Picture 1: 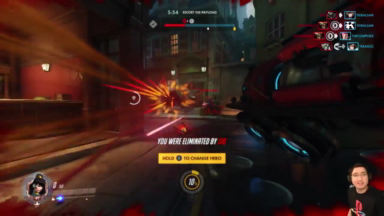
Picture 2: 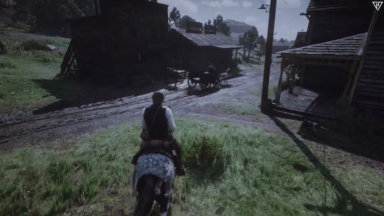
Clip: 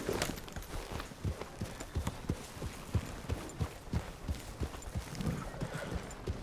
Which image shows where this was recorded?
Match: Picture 2